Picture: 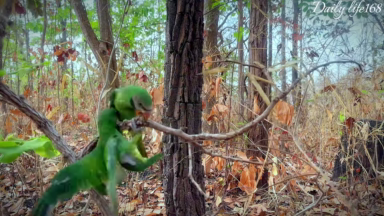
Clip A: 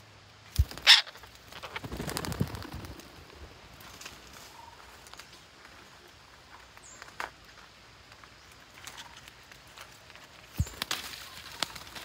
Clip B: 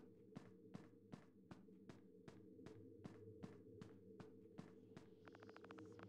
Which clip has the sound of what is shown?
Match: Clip A